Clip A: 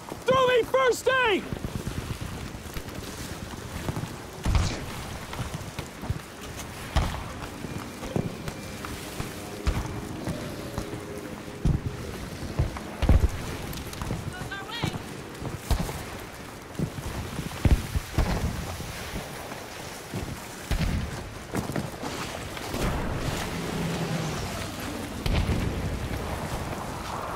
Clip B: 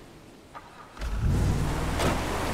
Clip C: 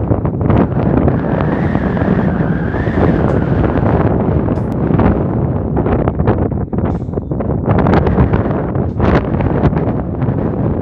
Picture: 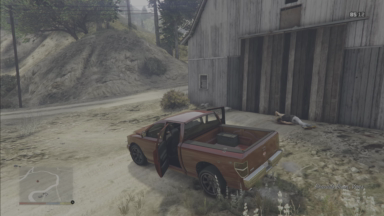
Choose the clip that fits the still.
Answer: B